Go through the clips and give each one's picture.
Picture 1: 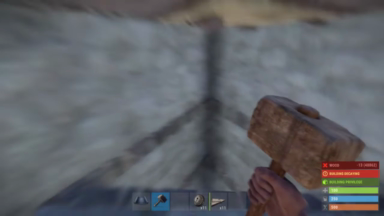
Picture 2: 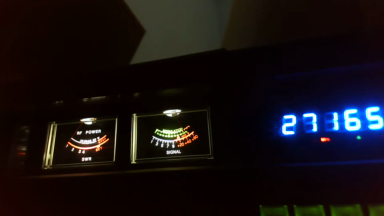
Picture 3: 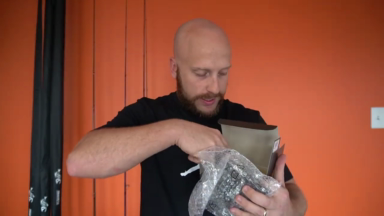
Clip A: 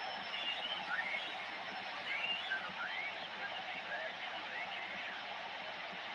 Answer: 2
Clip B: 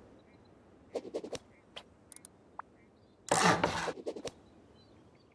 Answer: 1